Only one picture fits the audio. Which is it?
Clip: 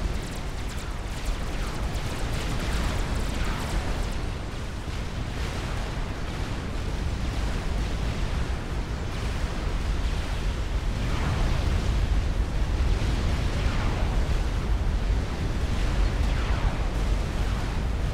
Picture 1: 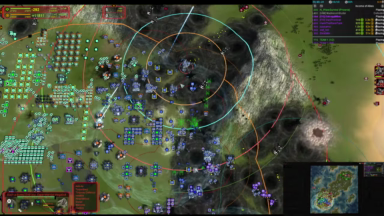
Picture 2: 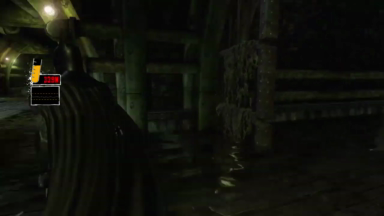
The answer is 1